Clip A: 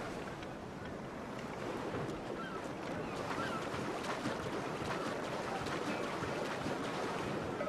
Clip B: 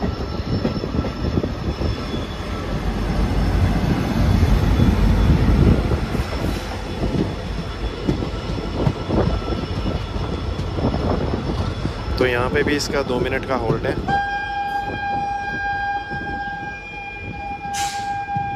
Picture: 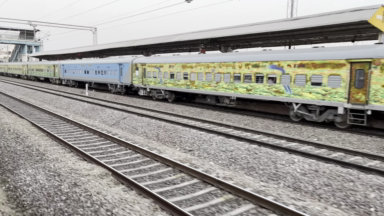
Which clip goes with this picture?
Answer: B